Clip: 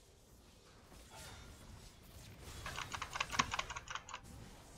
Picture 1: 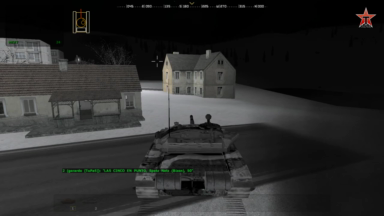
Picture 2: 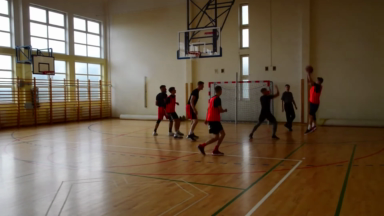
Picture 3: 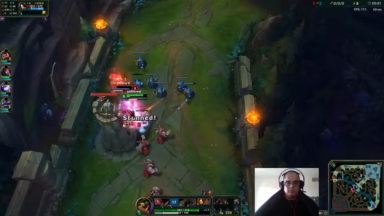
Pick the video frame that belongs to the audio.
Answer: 3